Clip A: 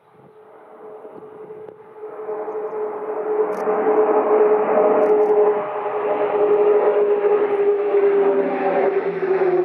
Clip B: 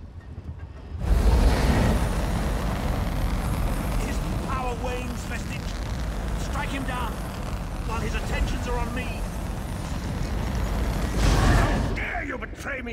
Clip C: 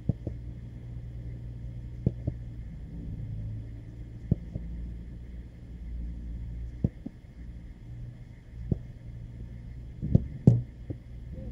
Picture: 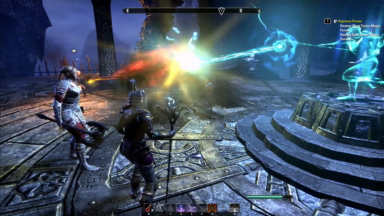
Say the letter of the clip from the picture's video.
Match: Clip B